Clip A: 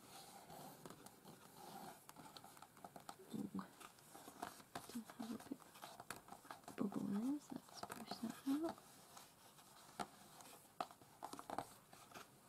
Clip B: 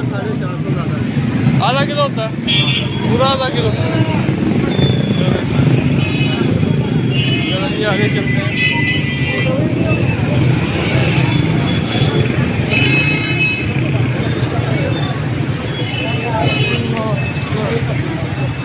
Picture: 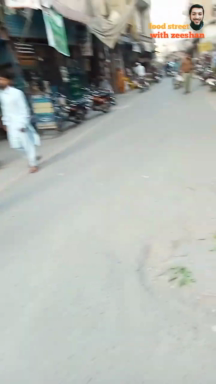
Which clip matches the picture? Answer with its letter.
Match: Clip B